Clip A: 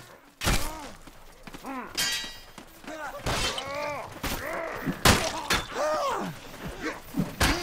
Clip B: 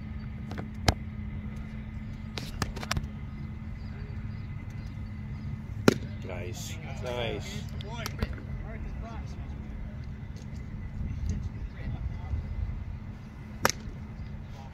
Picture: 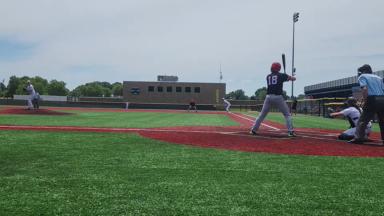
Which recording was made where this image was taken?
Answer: B